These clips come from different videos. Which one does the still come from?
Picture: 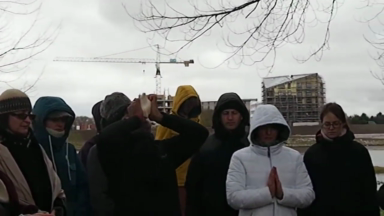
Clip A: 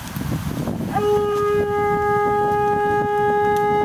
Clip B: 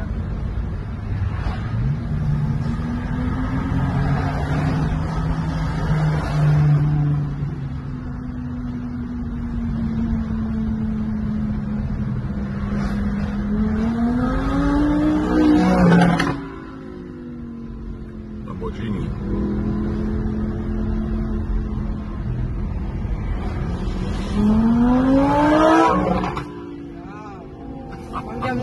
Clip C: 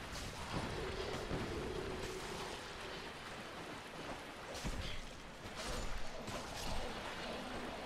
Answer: A